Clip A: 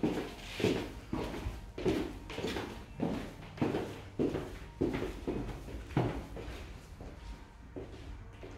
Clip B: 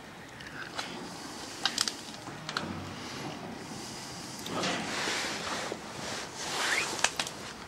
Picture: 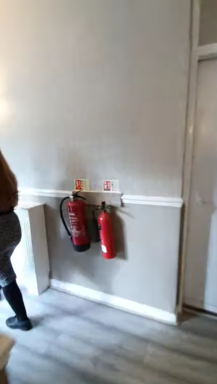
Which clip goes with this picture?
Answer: A